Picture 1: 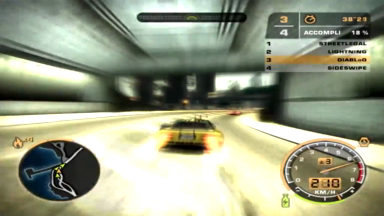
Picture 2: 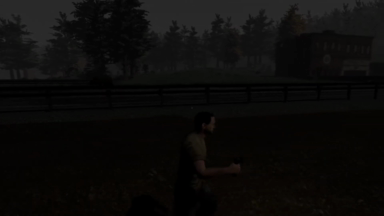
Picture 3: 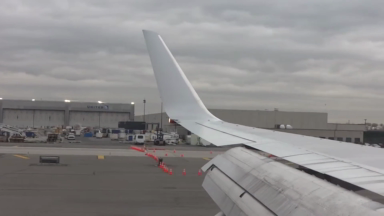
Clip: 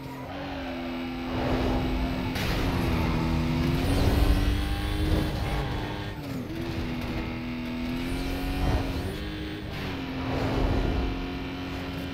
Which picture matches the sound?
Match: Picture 1